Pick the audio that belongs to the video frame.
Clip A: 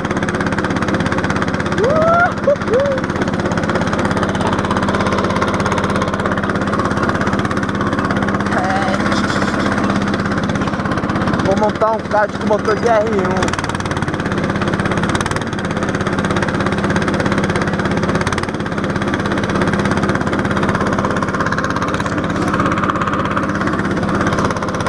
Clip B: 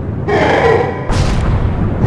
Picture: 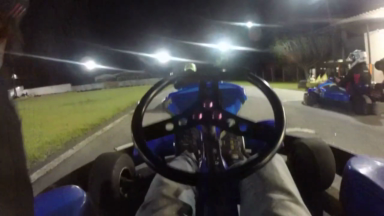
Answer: A